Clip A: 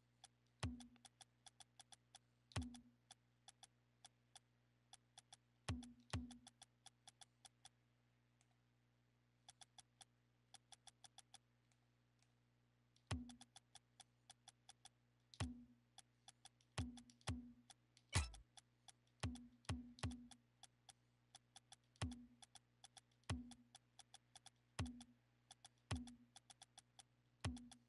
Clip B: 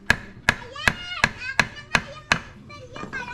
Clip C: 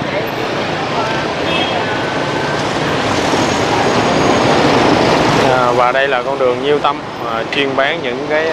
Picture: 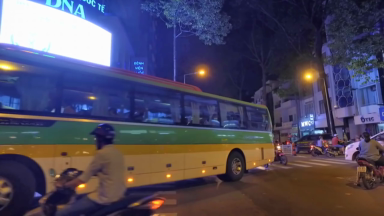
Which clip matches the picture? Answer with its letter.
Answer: C